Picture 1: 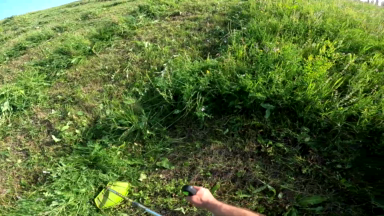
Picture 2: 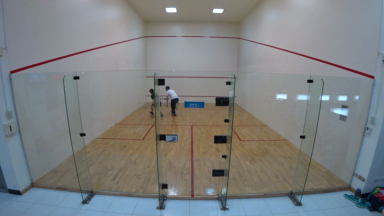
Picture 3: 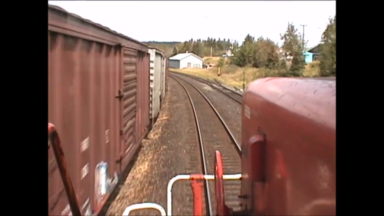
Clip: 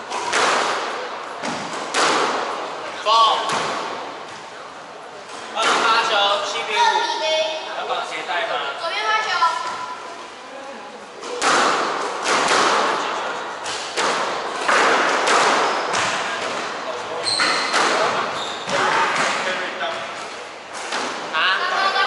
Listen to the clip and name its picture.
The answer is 2